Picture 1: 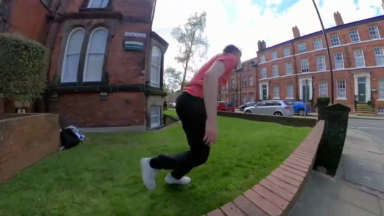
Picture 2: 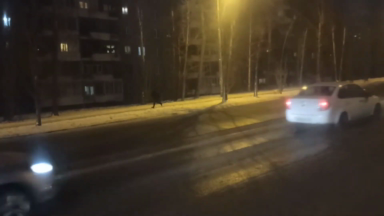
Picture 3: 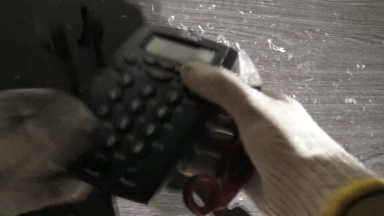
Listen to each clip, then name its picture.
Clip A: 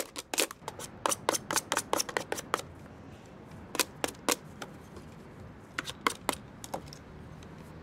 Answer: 3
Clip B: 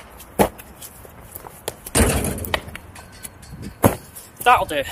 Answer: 1